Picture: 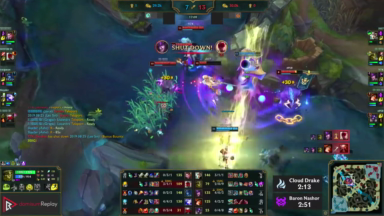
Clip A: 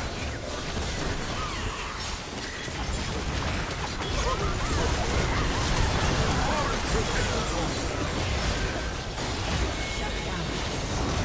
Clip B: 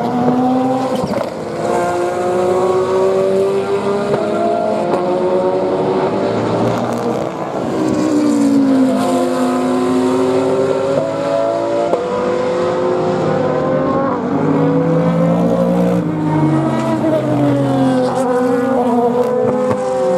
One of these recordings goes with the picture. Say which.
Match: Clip A